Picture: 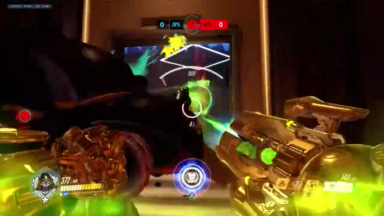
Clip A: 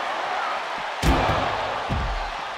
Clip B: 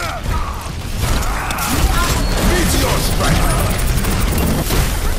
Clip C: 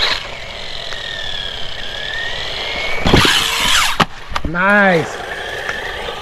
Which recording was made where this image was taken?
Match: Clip B